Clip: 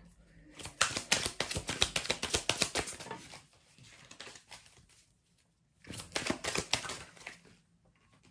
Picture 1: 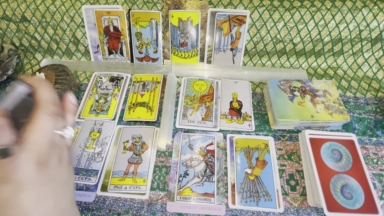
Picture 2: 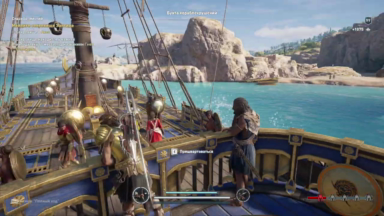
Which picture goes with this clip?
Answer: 1